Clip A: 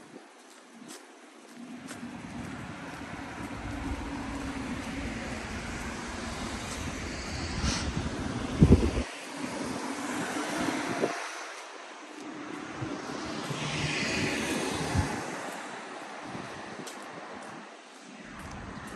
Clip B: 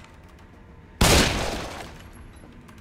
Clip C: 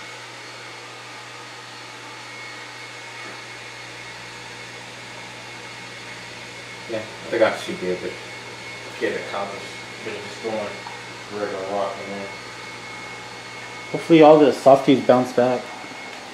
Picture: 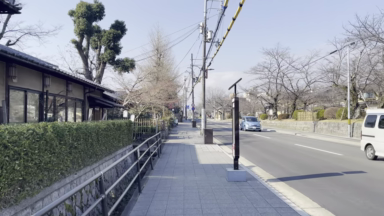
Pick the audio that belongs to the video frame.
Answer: A